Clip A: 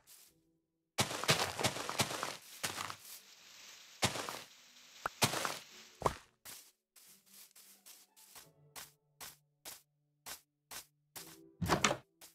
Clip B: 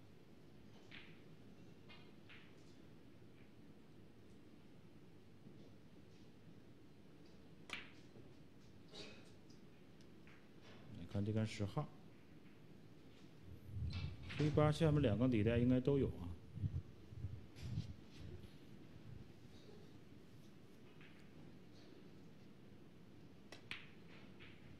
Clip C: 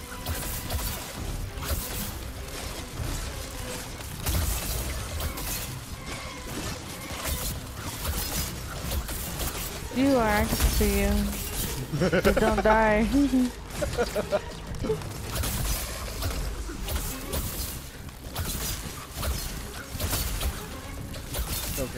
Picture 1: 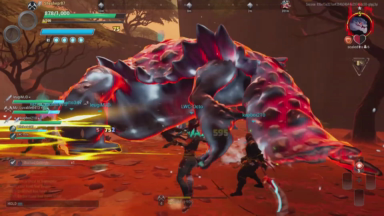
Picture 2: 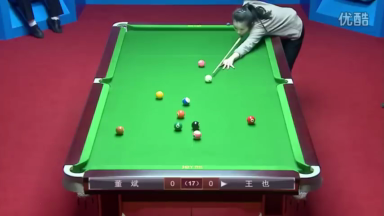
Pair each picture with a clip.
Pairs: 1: C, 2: B